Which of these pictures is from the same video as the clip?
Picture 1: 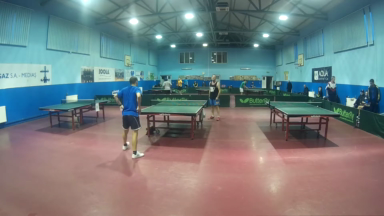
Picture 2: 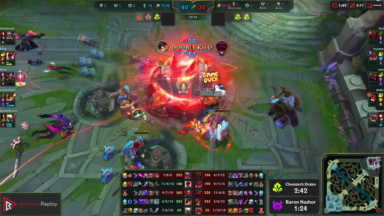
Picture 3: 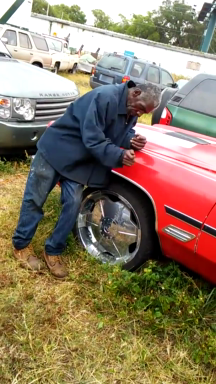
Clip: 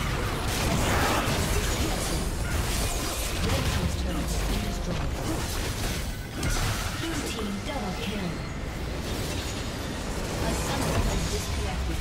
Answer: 2